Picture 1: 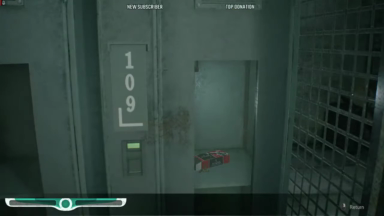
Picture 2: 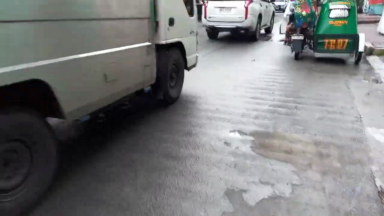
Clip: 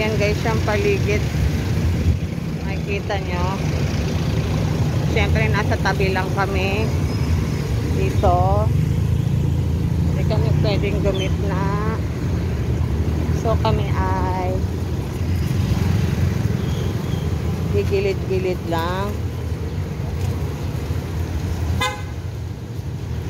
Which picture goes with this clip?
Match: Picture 2